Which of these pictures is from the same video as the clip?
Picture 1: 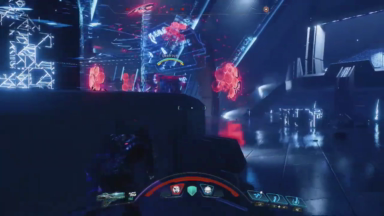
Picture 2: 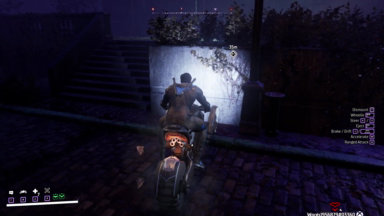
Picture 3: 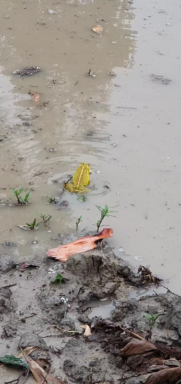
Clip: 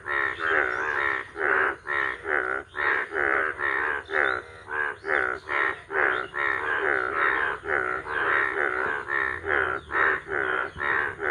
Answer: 3